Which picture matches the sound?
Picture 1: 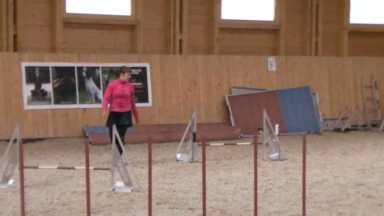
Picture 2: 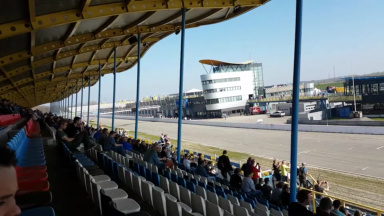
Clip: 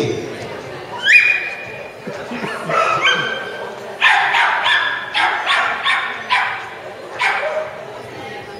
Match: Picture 1